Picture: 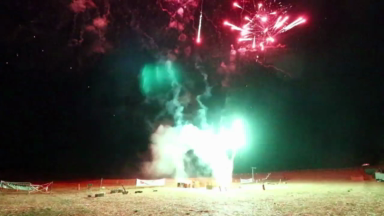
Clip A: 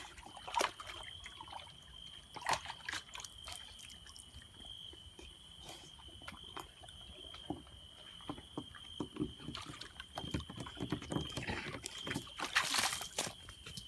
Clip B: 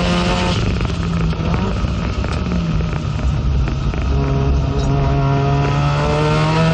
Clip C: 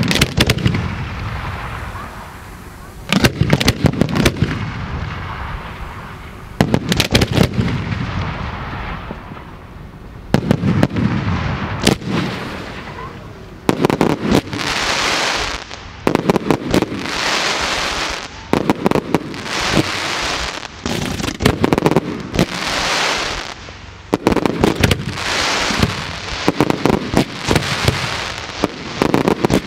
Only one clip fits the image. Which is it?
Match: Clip C